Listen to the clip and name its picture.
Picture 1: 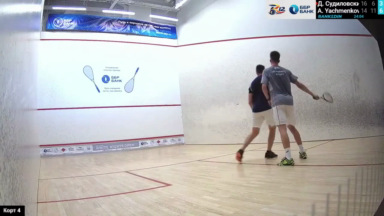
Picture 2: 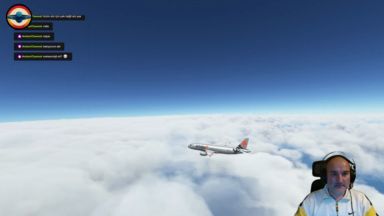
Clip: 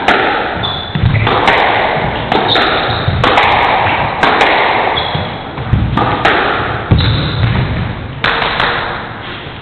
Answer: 1